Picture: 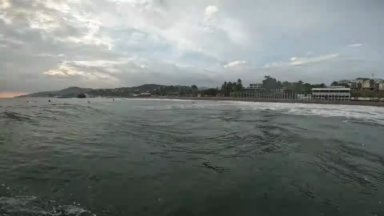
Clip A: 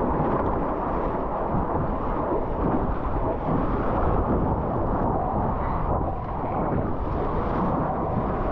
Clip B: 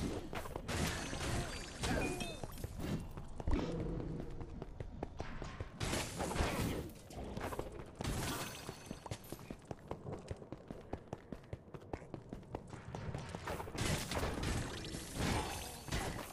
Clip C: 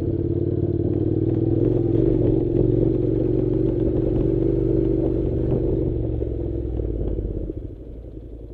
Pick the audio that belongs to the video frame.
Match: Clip A